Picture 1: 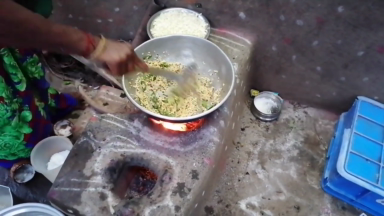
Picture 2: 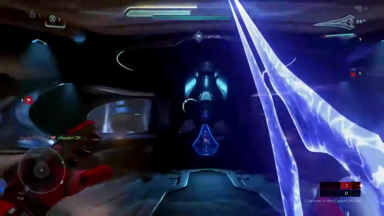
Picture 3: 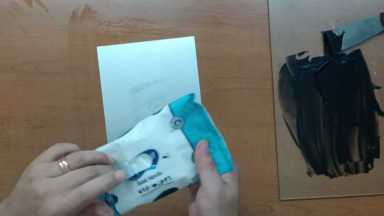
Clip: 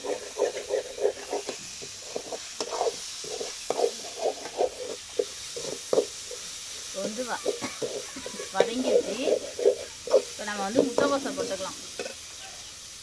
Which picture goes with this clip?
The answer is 1